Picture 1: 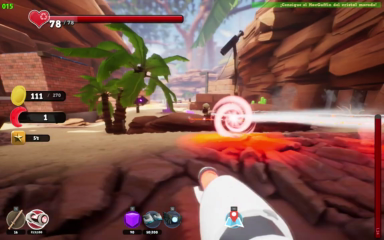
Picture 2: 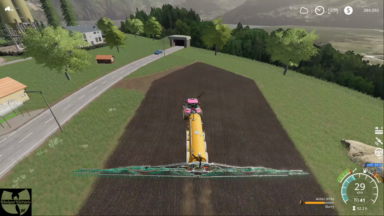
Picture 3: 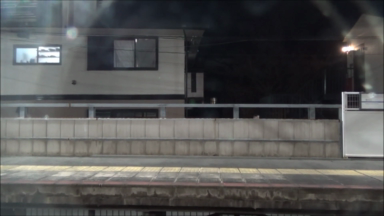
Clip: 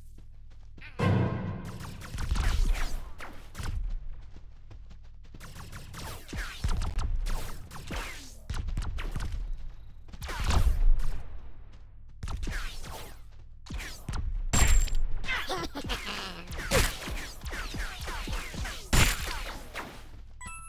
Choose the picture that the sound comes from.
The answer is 1